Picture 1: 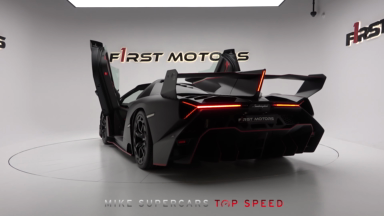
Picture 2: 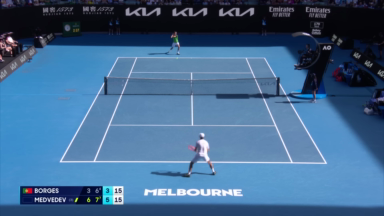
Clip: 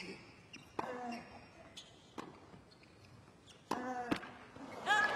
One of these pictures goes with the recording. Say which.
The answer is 2